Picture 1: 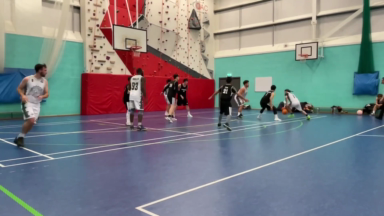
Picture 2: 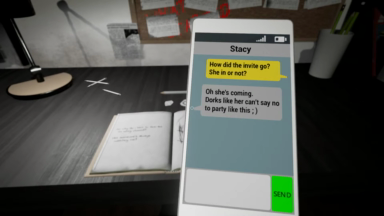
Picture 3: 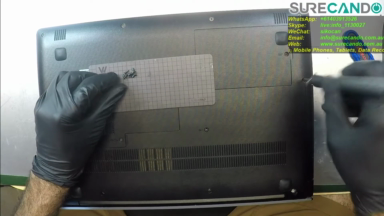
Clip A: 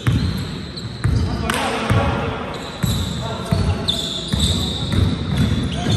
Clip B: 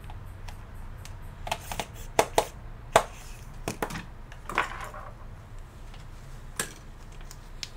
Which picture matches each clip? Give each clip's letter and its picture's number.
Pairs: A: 1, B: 3